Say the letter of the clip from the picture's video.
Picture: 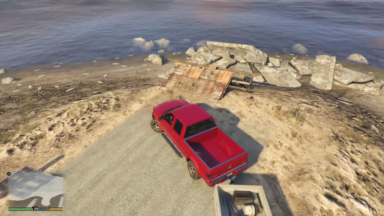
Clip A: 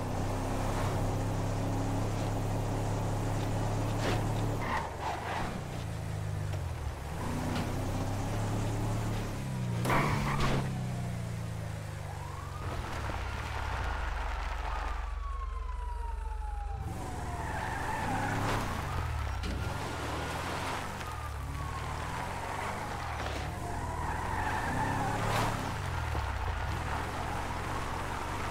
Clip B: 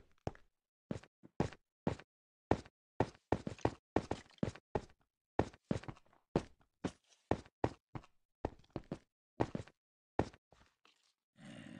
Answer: A